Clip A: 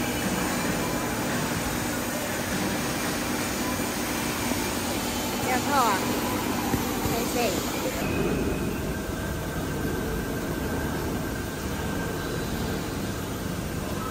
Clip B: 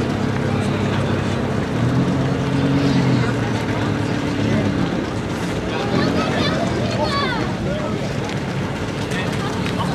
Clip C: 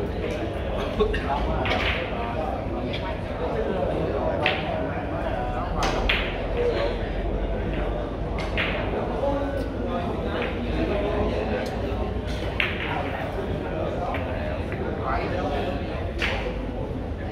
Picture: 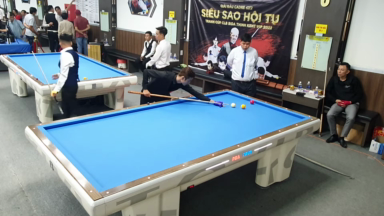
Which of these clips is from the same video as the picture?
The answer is C